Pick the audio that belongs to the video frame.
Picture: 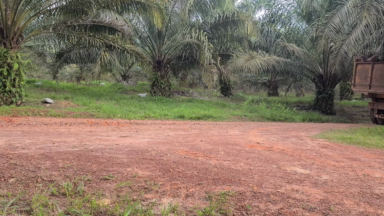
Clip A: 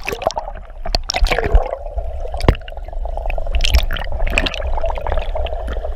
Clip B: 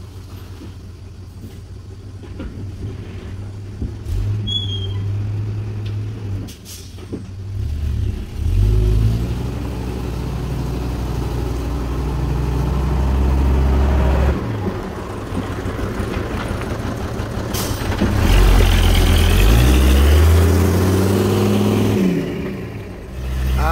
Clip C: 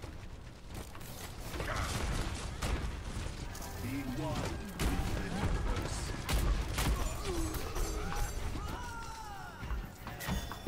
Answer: B